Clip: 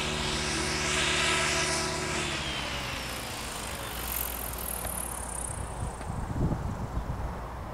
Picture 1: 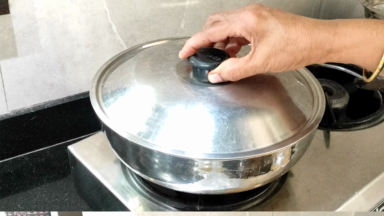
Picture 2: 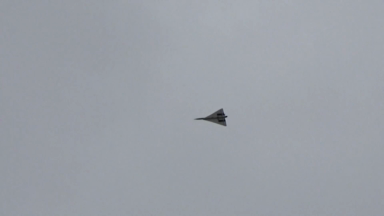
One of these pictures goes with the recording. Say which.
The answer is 2